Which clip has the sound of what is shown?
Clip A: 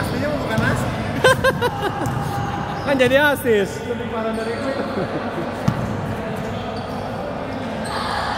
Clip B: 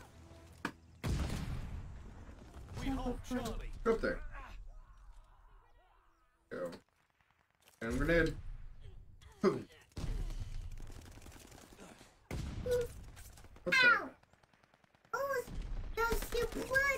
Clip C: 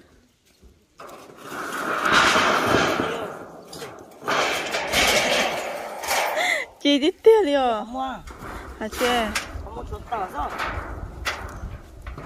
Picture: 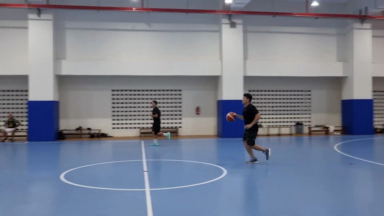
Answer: A